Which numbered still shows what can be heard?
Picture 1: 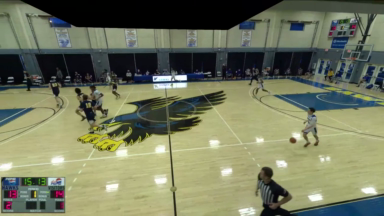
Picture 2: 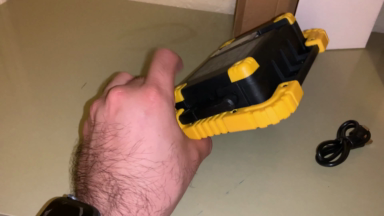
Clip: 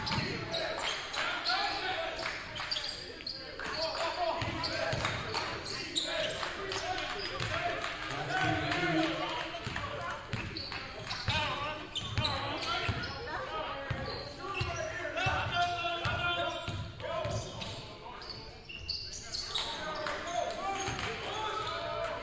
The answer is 1